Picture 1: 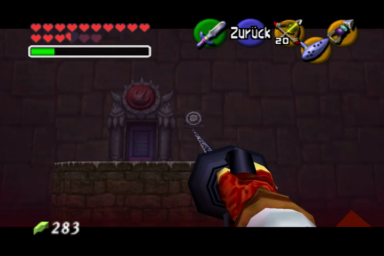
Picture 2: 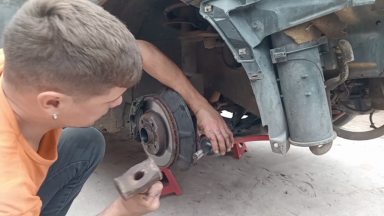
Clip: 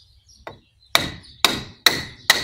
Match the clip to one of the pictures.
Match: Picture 2